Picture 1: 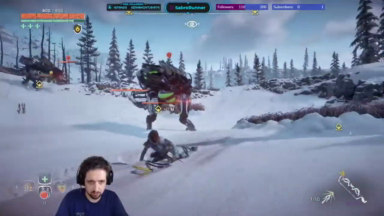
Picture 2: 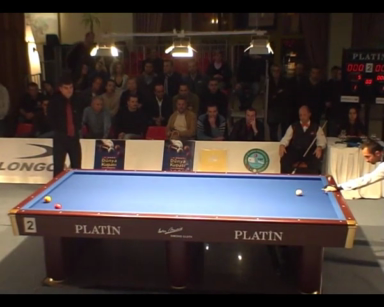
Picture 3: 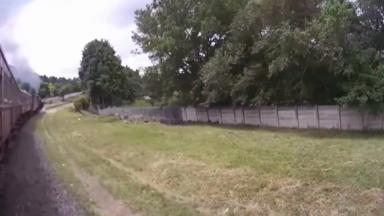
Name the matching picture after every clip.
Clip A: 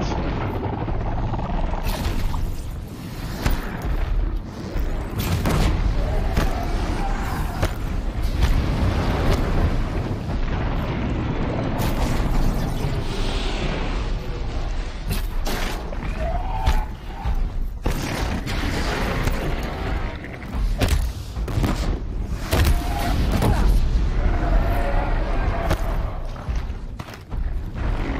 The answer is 1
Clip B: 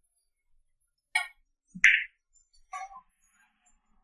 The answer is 2